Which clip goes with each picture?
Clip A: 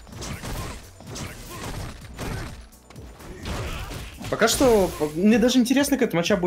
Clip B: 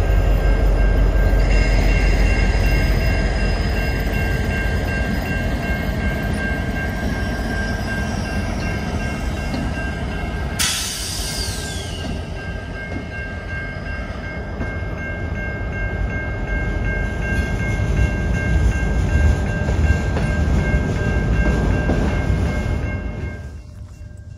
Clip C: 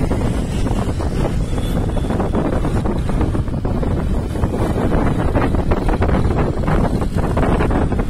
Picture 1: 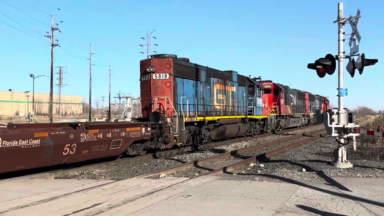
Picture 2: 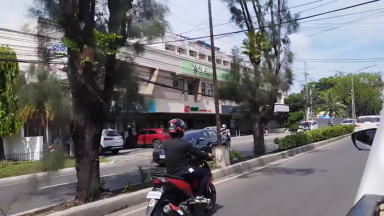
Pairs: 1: B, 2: C